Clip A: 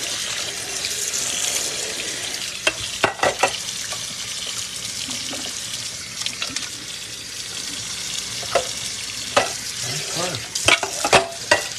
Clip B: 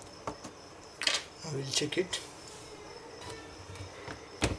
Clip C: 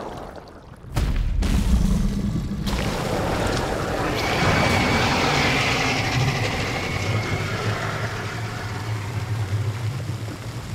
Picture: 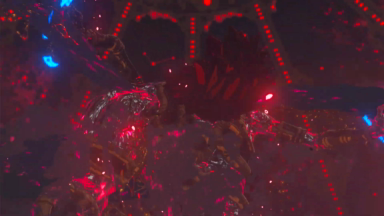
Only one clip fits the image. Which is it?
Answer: C